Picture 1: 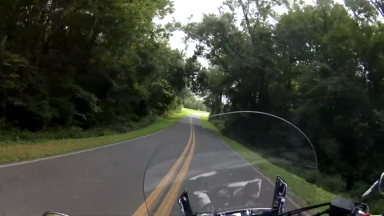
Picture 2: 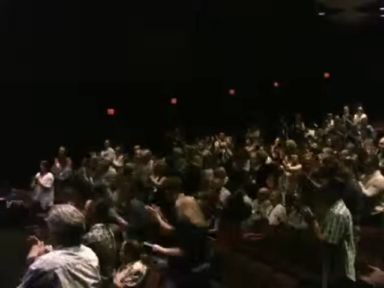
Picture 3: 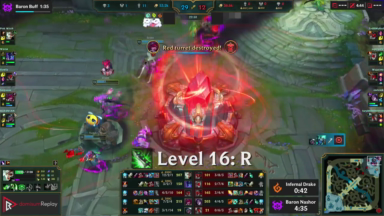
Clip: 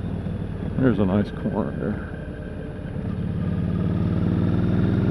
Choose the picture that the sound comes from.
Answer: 1